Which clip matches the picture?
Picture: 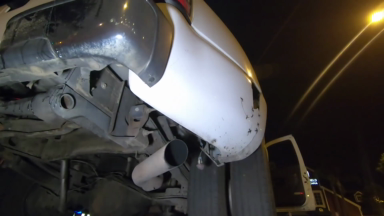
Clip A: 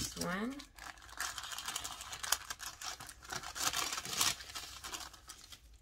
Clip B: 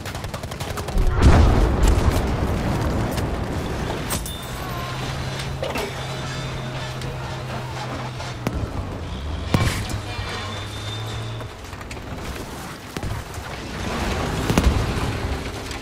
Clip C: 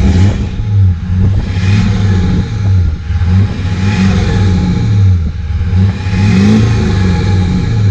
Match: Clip C